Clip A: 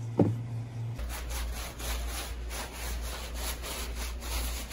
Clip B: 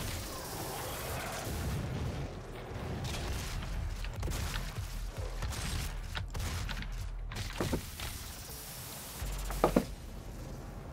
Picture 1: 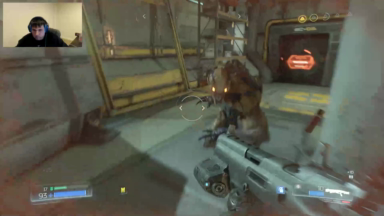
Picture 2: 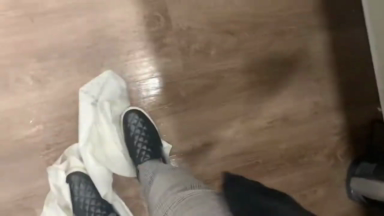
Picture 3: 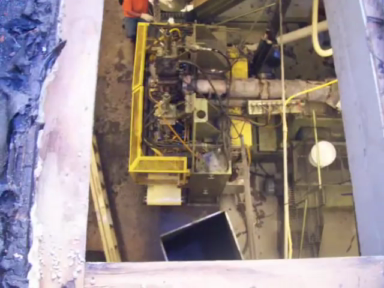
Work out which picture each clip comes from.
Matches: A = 2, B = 1